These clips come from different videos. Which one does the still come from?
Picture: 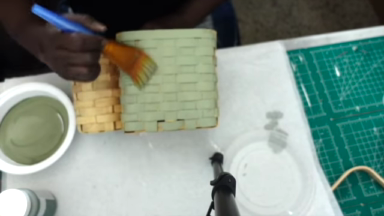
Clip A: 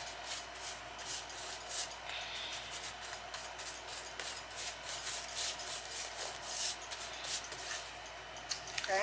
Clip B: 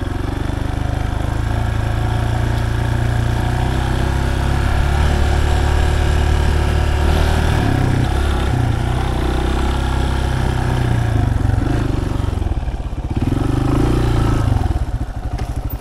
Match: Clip A